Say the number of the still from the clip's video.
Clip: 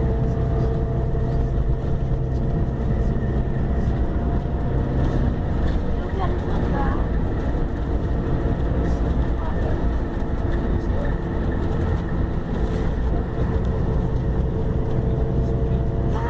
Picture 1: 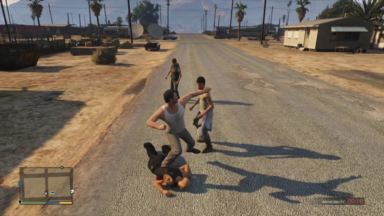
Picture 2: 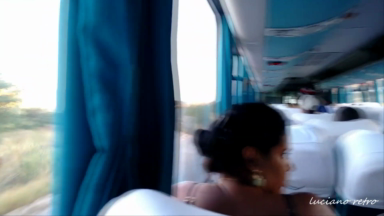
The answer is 2